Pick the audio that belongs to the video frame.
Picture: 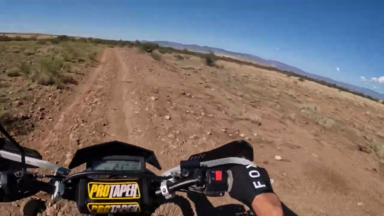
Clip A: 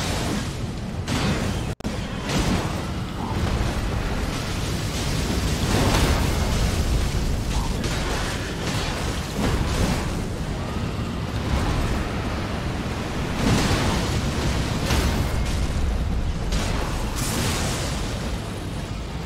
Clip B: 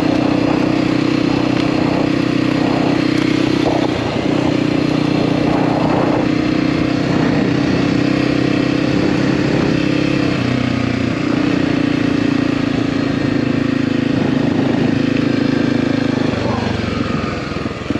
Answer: B